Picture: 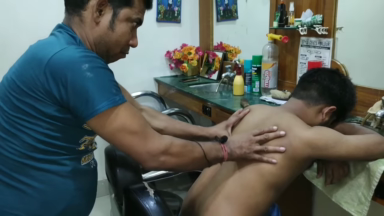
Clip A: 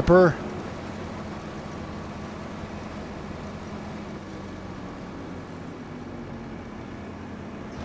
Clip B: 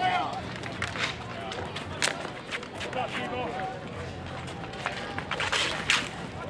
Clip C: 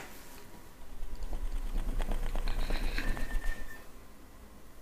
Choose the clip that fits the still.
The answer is C